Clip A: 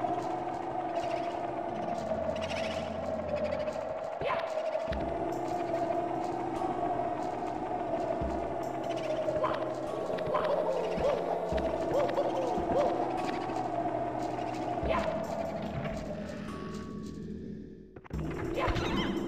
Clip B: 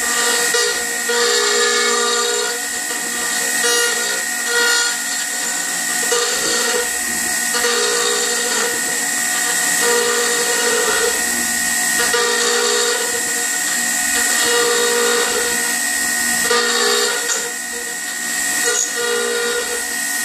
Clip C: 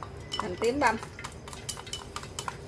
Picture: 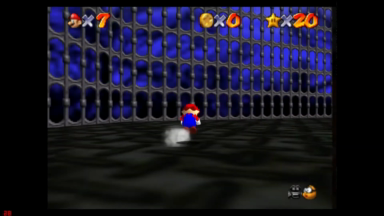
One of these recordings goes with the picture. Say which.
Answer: A